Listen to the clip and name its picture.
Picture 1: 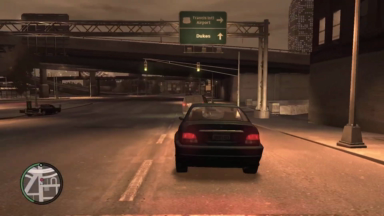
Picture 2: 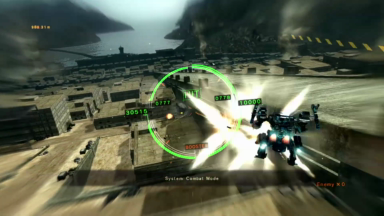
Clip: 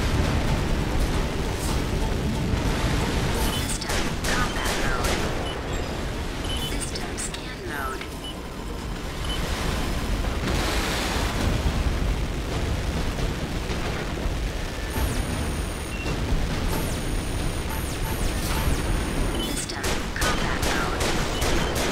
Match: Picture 2